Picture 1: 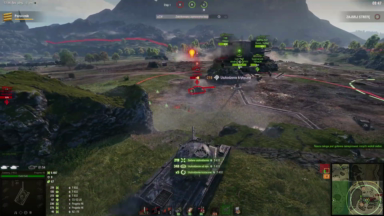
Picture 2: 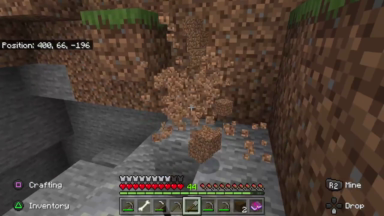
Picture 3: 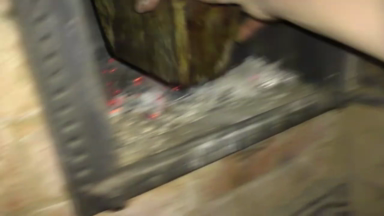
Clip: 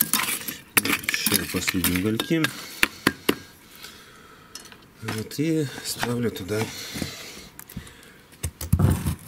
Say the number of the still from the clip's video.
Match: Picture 3